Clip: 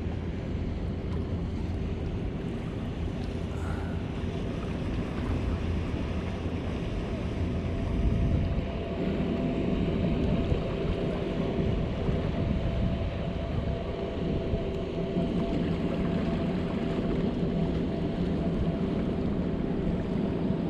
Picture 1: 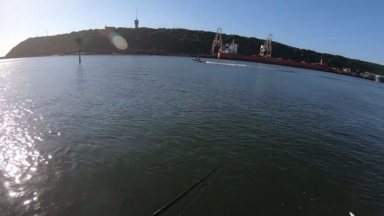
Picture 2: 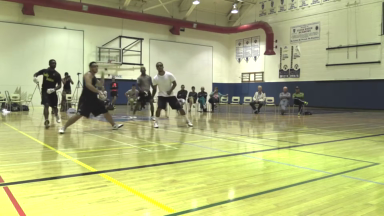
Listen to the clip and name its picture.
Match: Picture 1